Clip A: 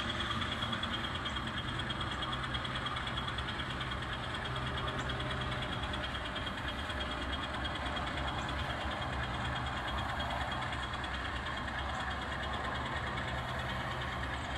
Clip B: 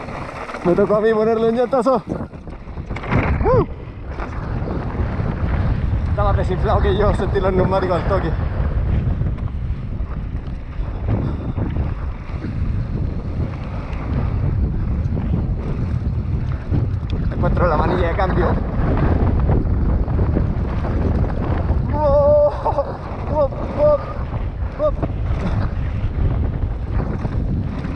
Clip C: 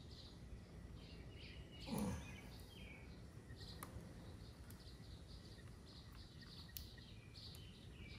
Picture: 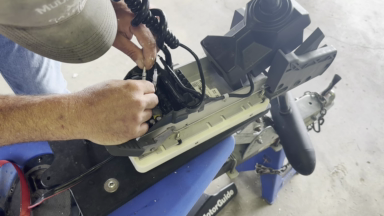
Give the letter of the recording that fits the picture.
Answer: C